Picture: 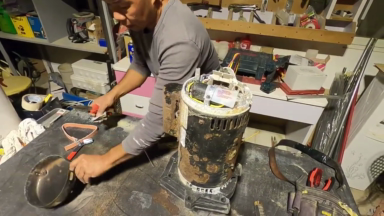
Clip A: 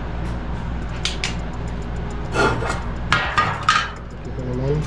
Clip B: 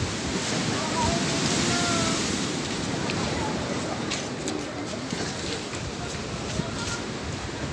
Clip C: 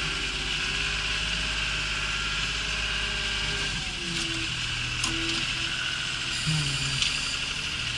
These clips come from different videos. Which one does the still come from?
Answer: A